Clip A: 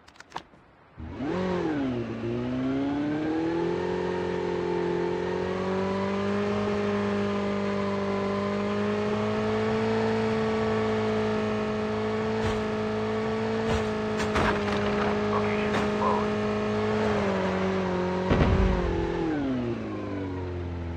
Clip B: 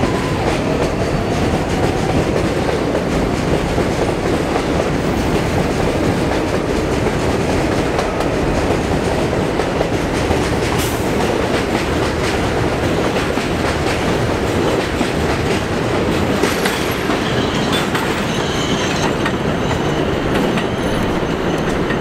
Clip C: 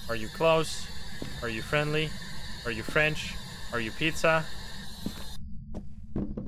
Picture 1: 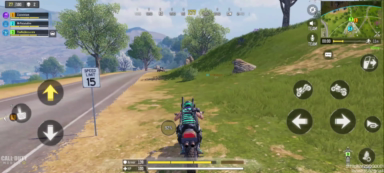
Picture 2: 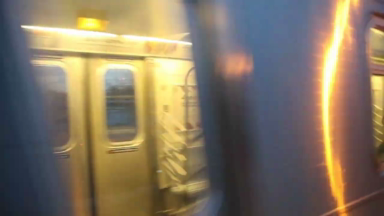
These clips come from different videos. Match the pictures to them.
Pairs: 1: A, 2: B